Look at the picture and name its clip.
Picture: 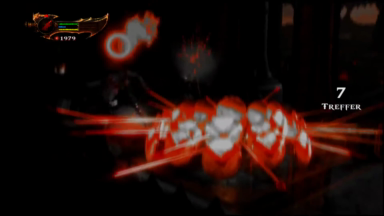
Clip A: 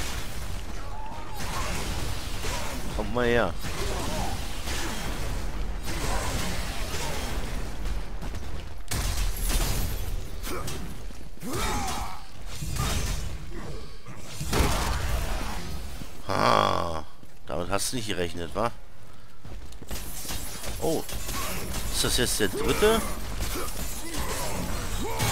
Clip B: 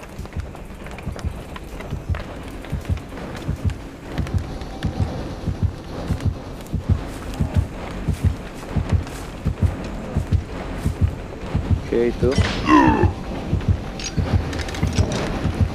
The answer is A